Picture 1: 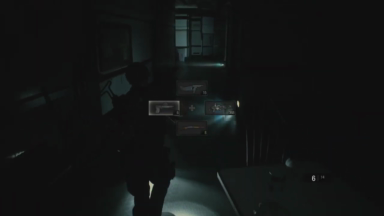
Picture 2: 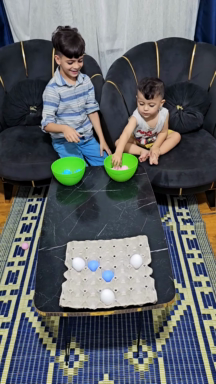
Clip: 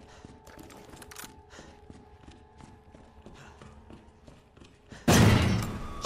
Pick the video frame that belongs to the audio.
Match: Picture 1